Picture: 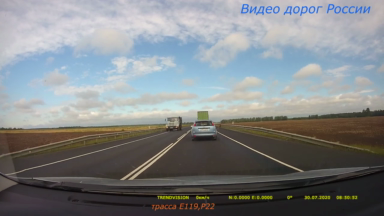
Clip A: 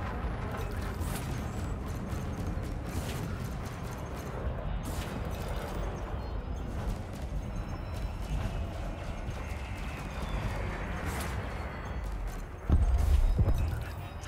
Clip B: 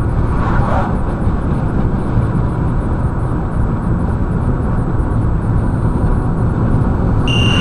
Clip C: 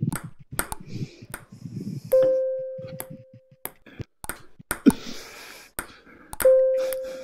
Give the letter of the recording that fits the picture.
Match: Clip B